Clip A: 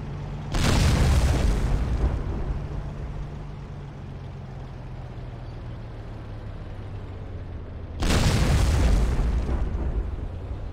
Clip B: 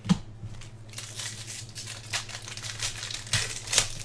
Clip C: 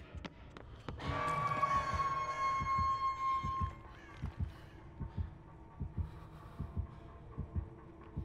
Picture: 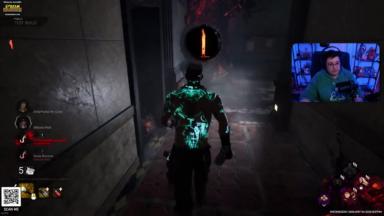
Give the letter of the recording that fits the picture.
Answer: C